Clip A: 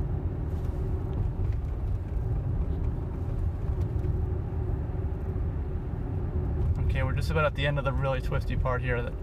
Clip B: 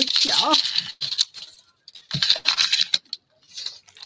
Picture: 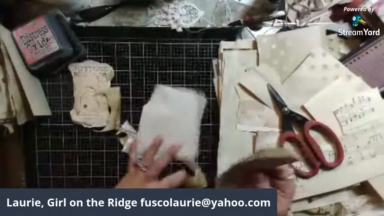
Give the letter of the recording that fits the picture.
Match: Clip B